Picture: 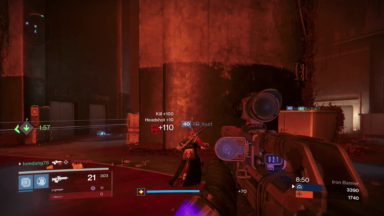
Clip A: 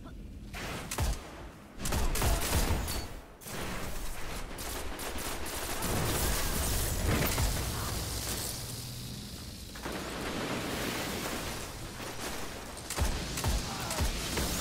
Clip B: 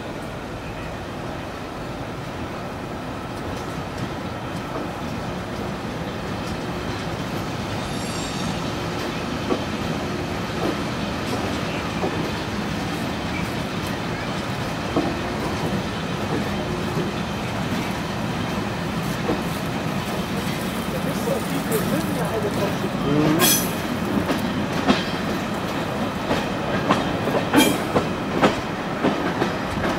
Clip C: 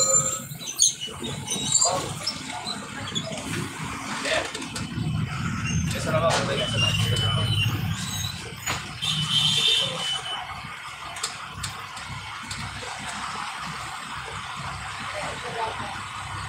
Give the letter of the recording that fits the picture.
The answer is A